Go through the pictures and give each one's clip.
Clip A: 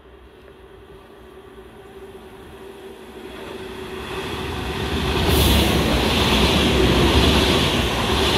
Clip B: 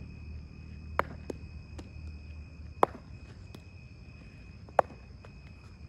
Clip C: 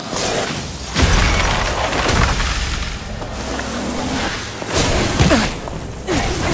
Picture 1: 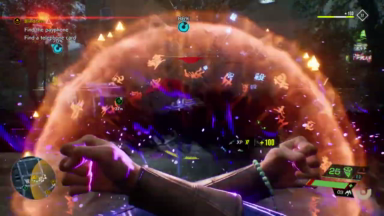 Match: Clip C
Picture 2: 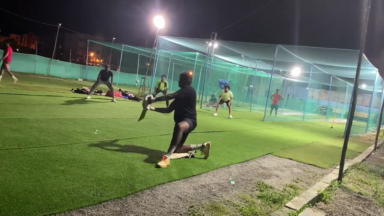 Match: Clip B